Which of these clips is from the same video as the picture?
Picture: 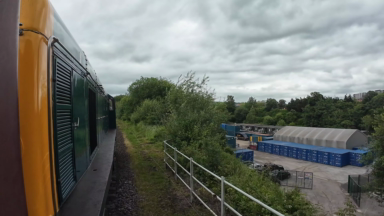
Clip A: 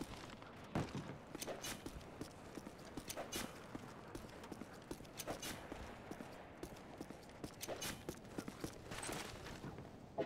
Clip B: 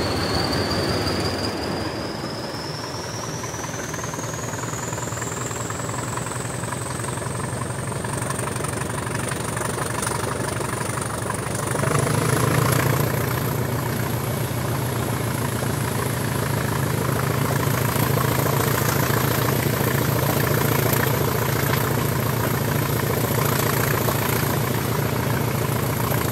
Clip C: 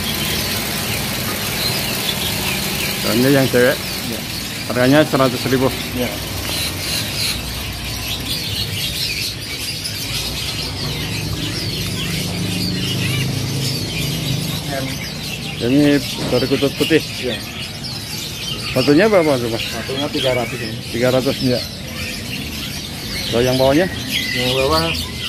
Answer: B